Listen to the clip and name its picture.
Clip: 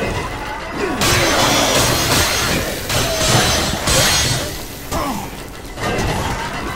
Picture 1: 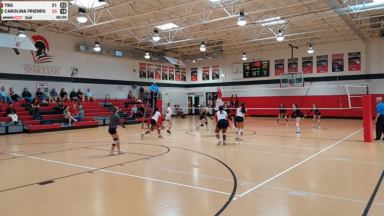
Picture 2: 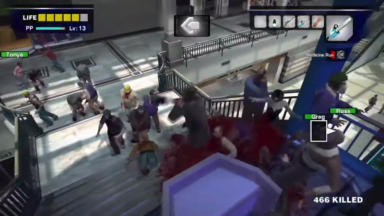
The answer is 2